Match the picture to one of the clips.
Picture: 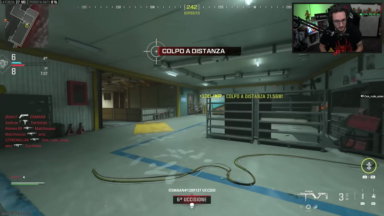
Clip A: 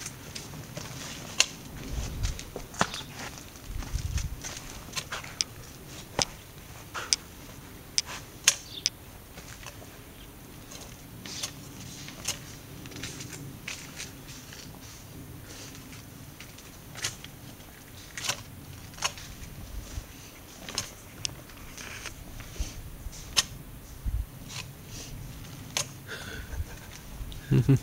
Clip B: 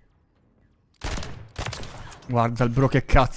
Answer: B